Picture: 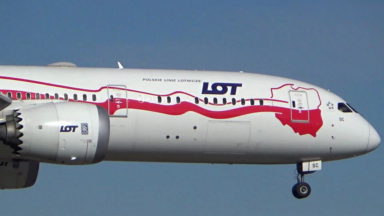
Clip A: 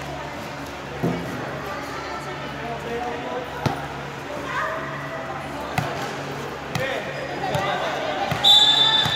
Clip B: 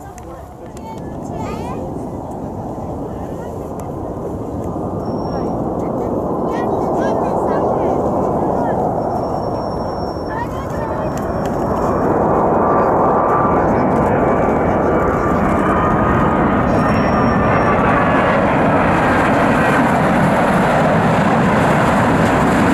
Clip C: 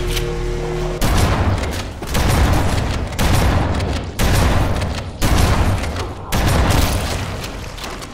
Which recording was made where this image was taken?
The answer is B